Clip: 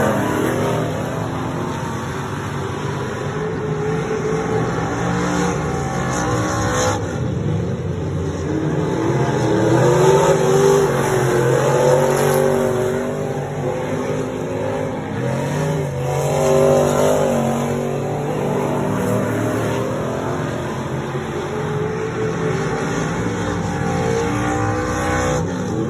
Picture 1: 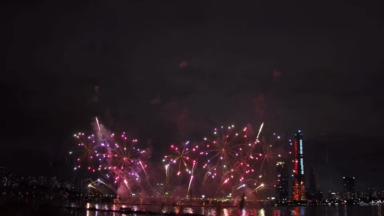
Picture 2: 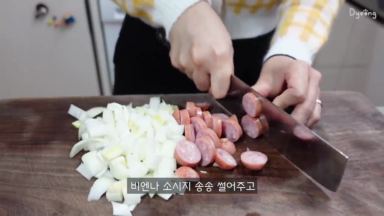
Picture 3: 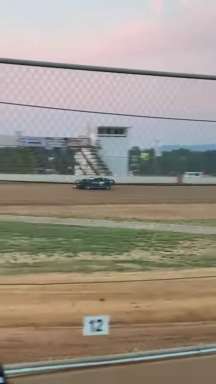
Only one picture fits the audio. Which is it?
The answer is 3